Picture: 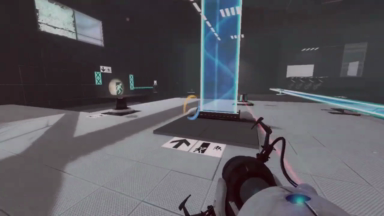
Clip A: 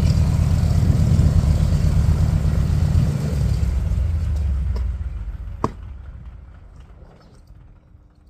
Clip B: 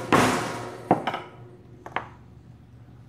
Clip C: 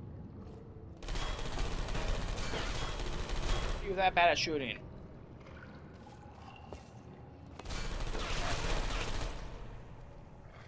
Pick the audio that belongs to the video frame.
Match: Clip C